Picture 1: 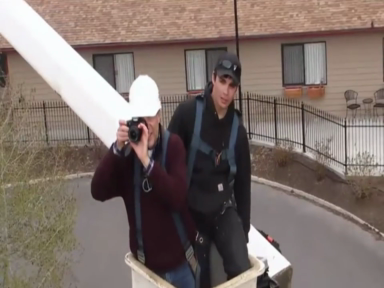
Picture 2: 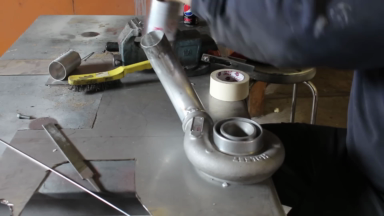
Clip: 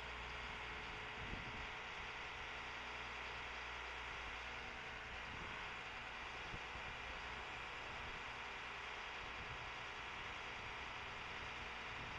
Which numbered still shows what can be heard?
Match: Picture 1